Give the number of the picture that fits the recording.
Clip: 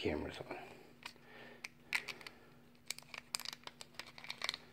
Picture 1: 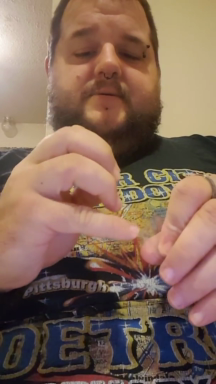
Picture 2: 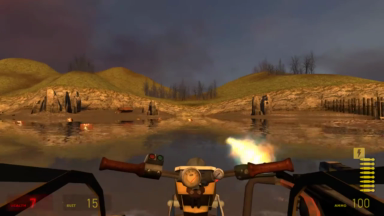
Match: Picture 1